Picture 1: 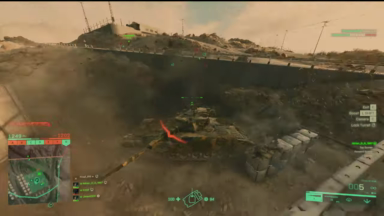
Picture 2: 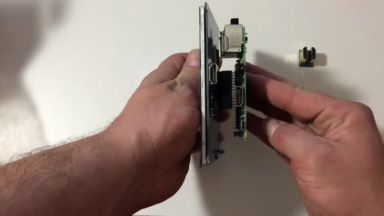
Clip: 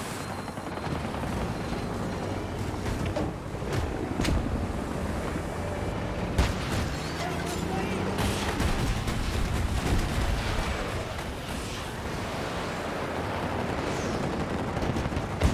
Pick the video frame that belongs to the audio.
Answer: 1